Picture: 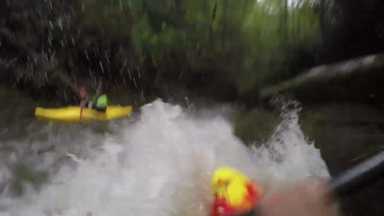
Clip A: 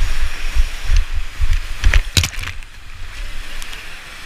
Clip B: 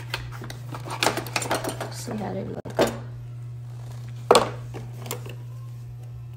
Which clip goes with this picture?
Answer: A